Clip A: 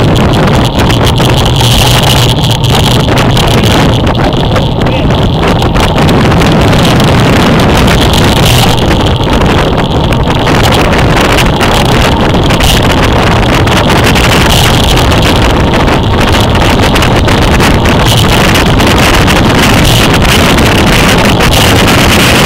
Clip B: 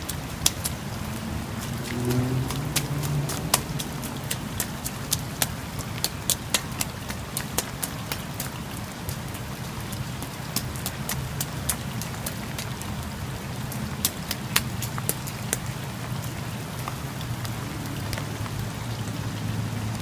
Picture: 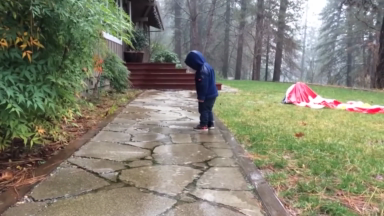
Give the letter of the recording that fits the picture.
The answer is B